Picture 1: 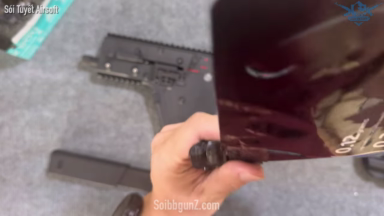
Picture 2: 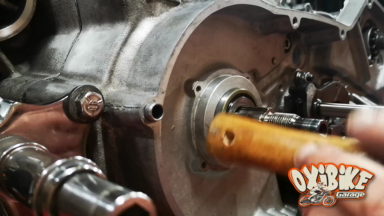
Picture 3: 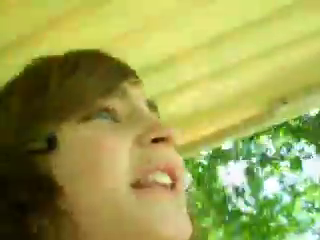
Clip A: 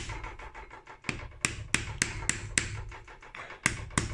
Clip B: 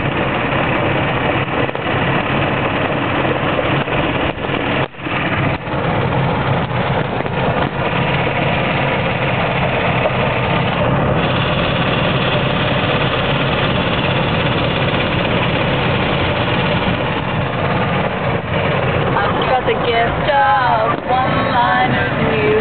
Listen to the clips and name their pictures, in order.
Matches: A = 2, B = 3